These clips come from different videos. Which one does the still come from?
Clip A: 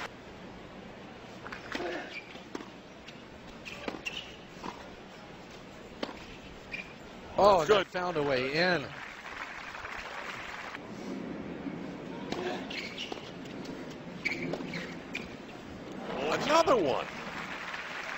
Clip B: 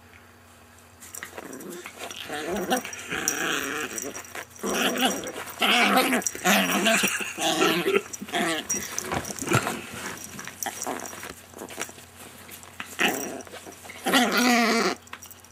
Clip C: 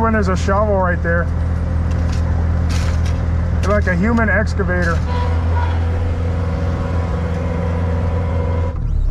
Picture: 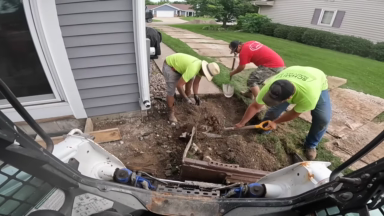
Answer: C